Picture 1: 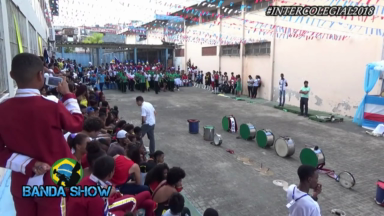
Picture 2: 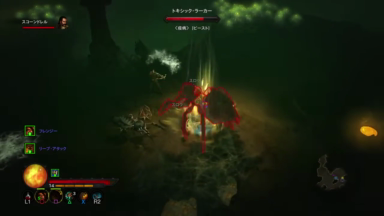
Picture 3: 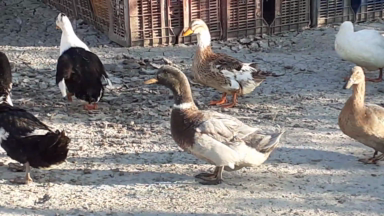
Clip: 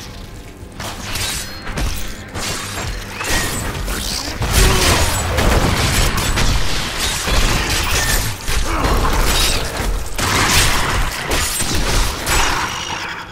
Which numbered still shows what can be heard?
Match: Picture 2